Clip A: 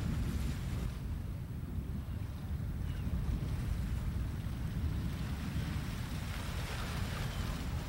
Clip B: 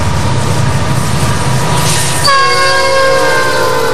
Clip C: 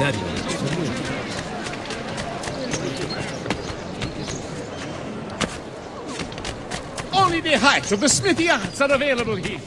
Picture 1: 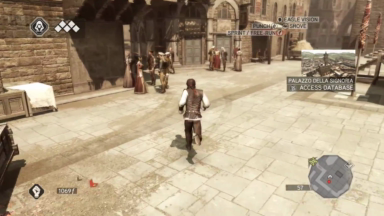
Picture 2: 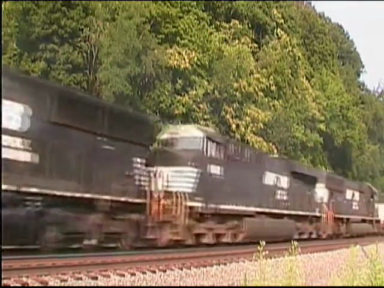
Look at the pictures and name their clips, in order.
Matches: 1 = C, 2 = B